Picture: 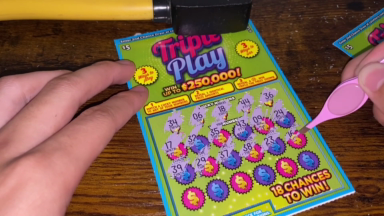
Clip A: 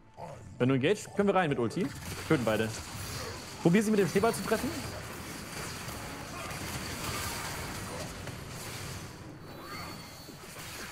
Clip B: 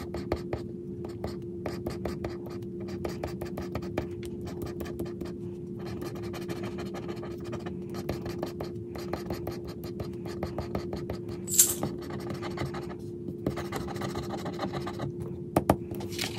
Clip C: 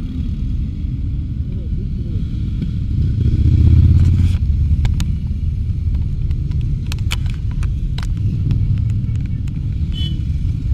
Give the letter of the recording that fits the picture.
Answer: B